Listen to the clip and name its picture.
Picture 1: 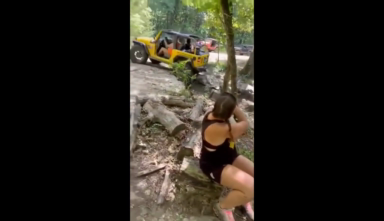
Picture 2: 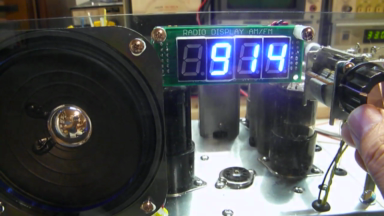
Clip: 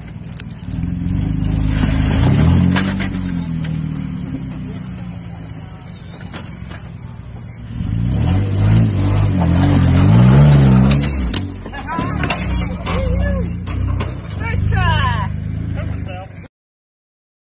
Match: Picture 1